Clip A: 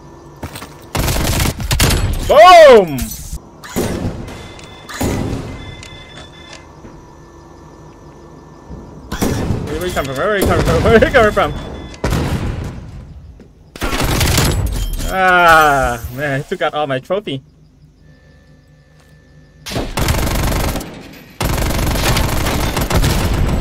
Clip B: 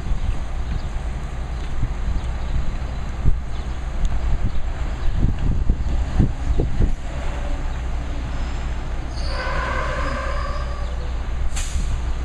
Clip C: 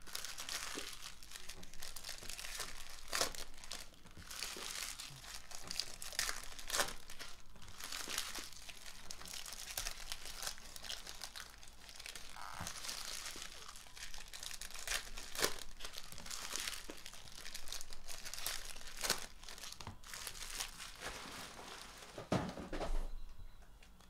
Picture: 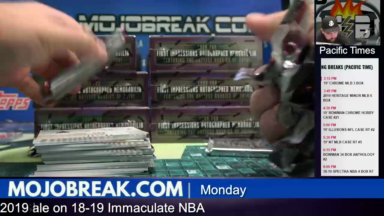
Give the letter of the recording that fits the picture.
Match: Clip C